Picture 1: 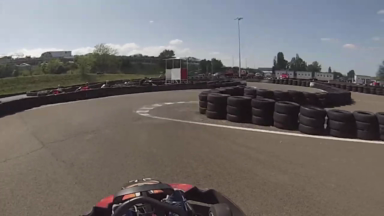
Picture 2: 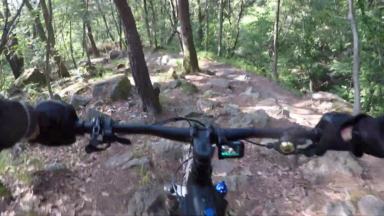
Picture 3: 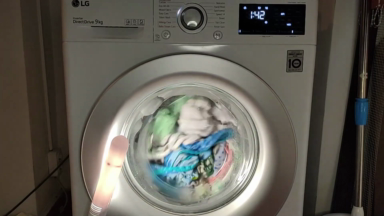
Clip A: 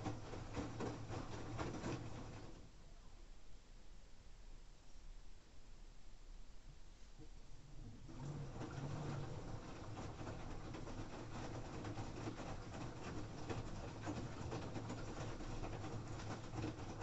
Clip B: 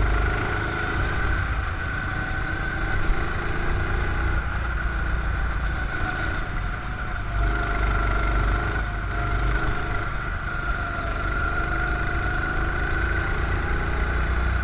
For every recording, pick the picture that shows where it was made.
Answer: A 3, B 1